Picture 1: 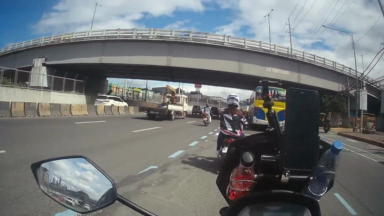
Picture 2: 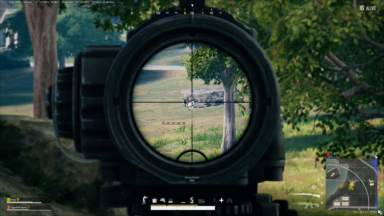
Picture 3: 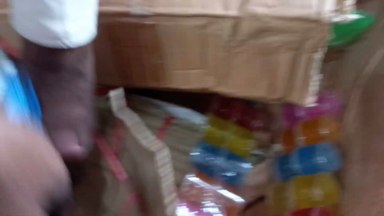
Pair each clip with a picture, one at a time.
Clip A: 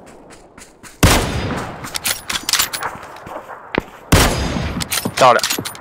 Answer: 2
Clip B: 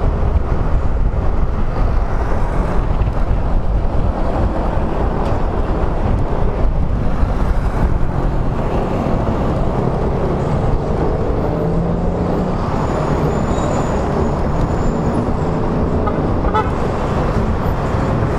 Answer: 1